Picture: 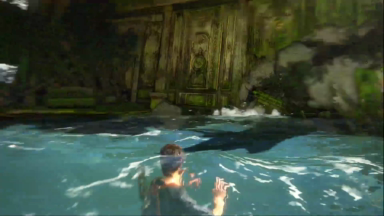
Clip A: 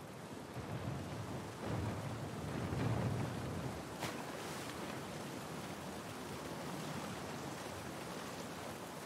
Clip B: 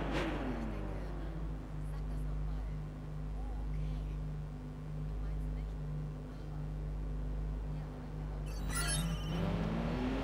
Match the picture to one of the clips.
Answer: A